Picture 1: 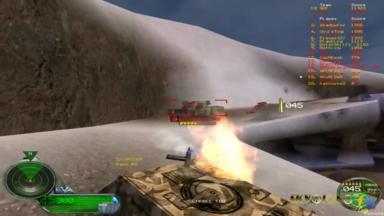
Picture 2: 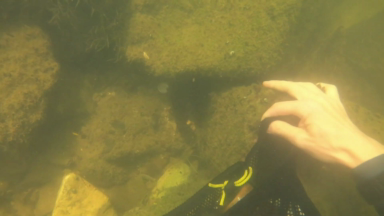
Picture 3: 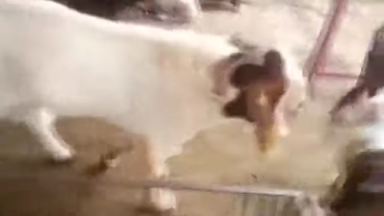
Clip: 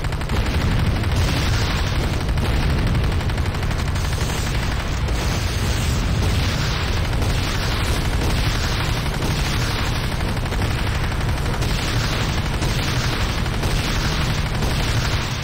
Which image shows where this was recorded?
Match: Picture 1